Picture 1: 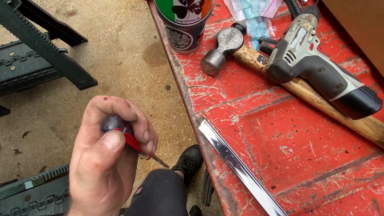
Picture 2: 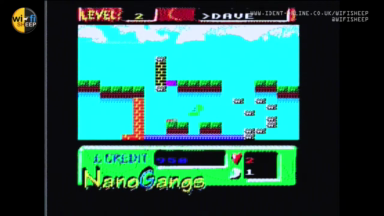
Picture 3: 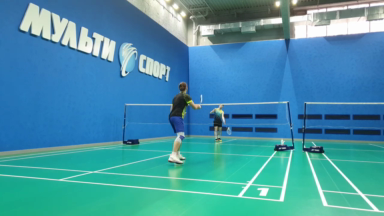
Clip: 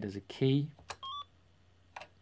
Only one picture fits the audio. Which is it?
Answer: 2